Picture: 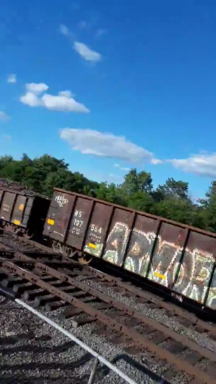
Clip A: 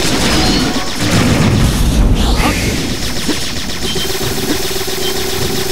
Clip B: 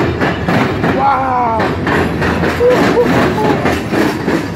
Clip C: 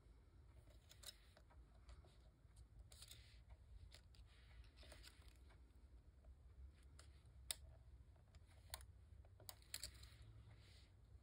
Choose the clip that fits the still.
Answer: B